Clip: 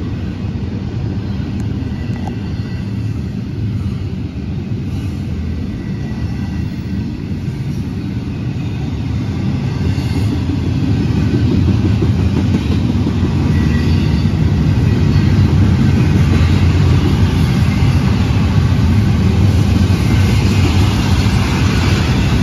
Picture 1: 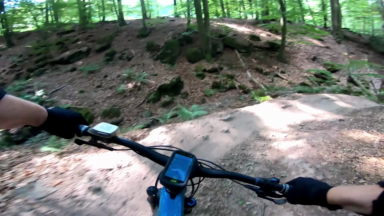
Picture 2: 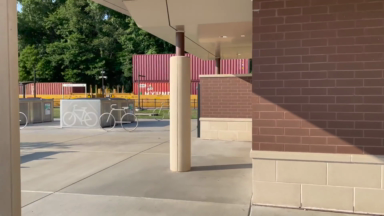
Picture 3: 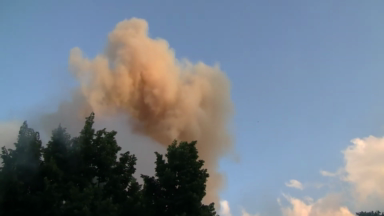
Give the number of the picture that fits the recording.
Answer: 2